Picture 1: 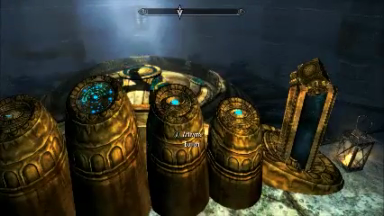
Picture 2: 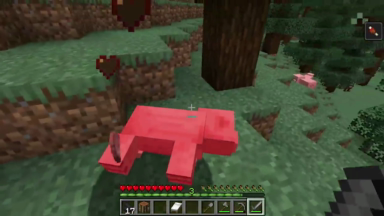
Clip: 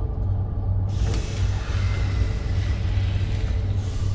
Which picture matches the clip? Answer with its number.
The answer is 1